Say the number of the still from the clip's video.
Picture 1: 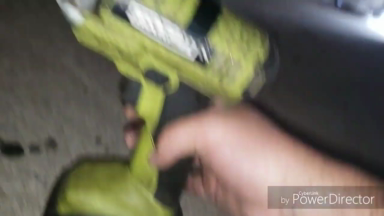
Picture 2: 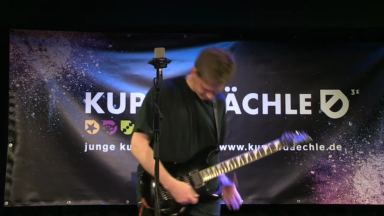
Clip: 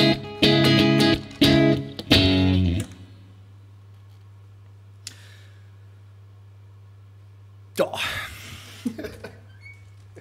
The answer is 2